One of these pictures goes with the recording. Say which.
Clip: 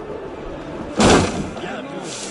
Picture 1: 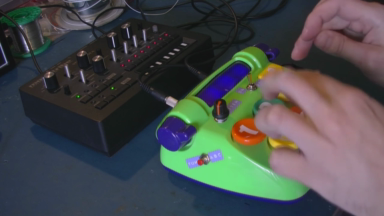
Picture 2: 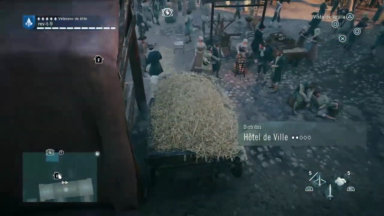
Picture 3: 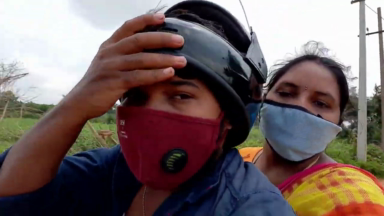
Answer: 2